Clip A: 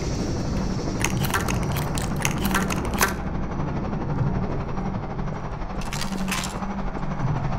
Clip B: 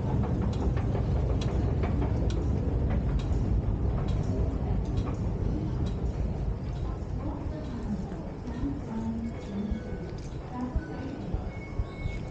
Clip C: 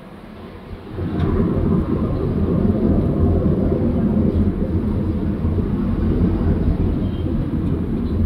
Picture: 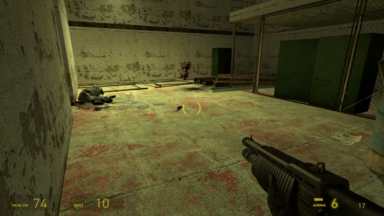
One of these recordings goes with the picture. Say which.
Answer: A